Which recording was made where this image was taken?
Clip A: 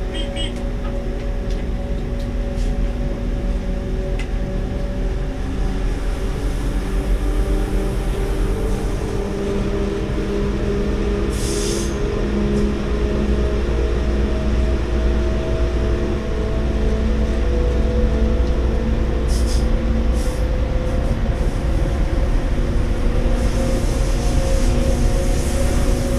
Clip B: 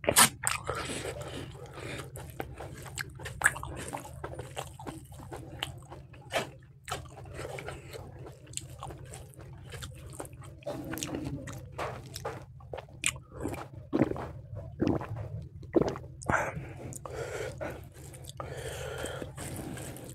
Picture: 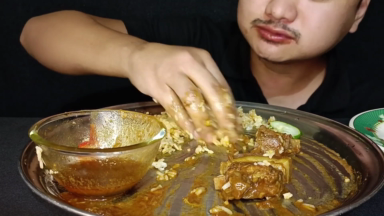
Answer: B